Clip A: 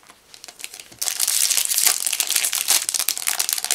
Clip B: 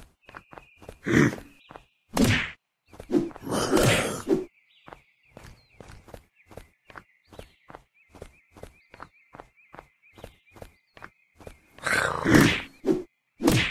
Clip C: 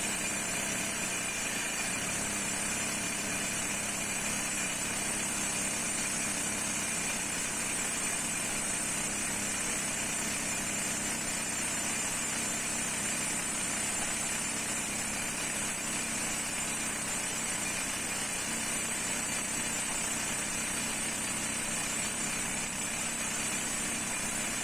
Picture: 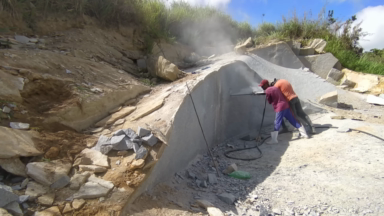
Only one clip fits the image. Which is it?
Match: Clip C